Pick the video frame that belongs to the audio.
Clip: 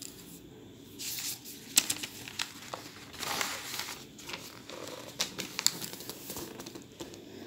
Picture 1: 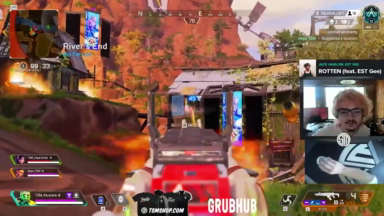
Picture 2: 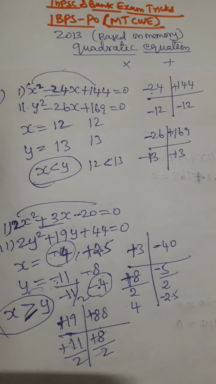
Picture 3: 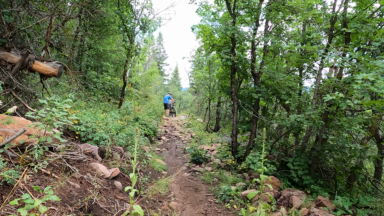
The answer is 2